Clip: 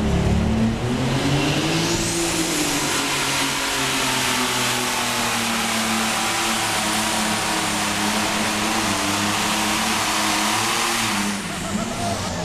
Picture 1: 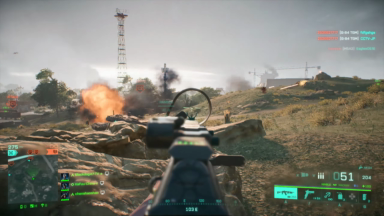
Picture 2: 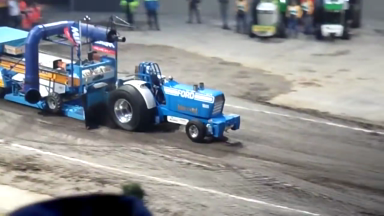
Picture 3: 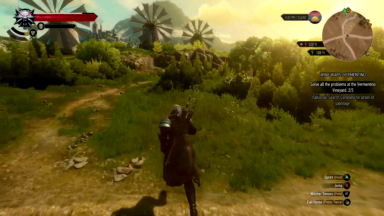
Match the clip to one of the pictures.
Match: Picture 2